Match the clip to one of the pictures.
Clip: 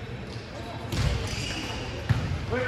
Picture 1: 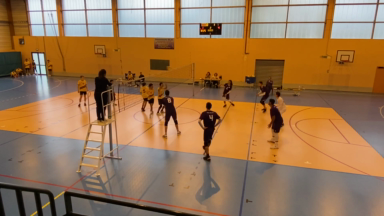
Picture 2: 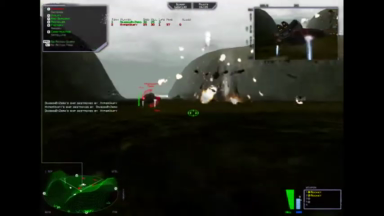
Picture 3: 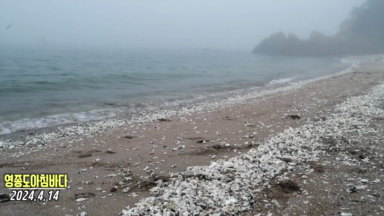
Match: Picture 1